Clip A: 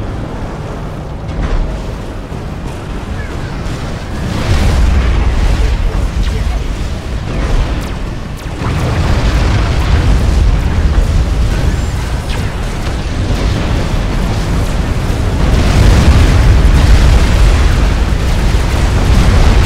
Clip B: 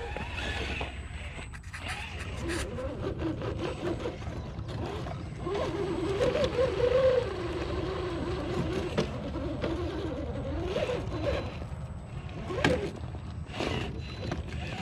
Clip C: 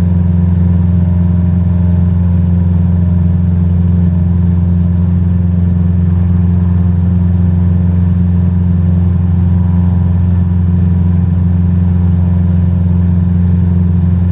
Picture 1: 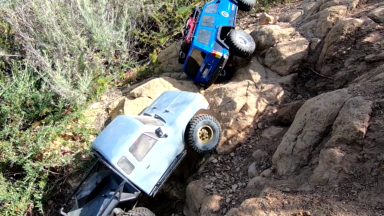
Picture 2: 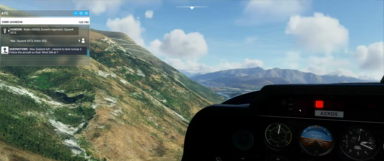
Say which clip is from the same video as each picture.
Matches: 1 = B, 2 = C